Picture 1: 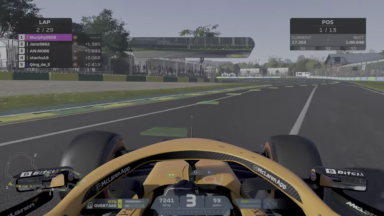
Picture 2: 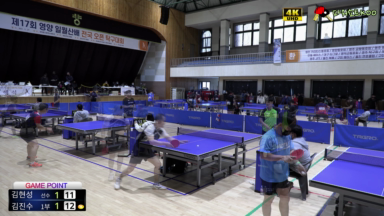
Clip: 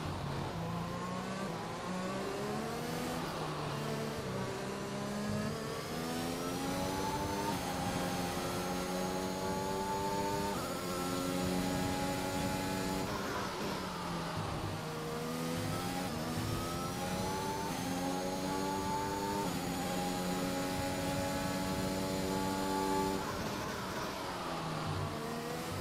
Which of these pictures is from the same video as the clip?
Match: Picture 1